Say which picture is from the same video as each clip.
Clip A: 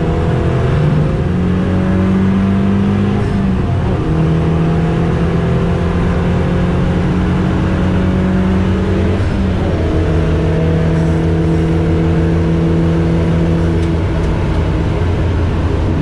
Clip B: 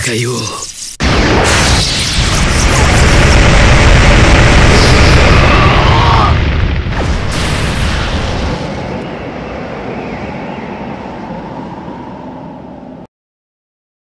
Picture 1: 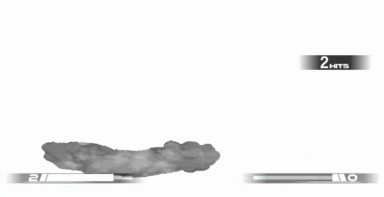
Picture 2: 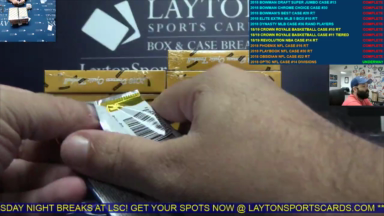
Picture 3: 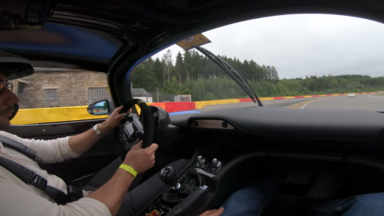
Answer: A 3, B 1